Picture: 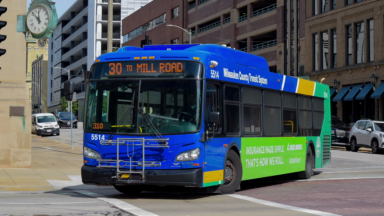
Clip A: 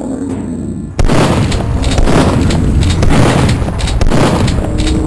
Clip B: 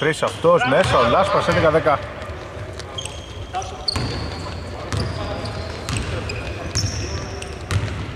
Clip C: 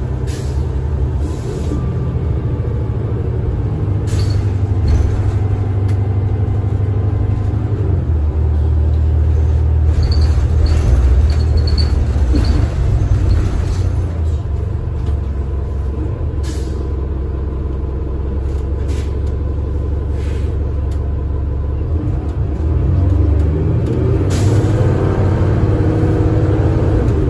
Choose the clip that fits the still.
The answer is C